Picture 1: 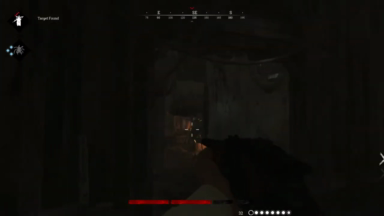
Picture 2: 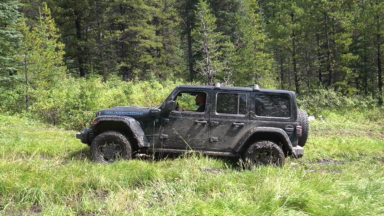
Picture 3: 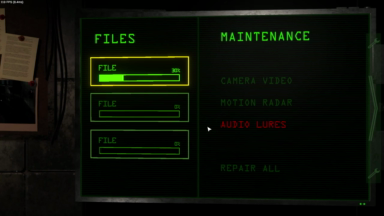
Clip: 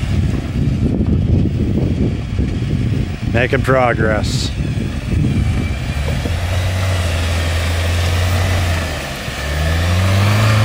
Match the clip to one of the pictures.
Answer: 2